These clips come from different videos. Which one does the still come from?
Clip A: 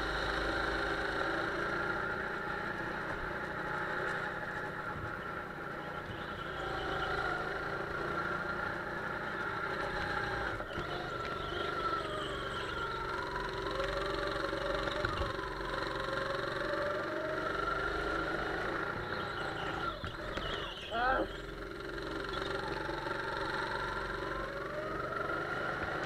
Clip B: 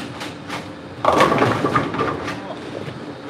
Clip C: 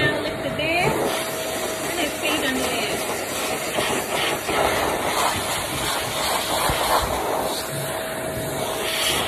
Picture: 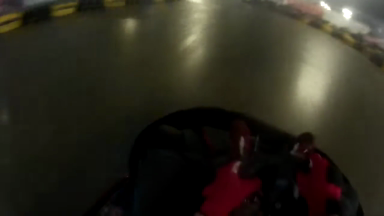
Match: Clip A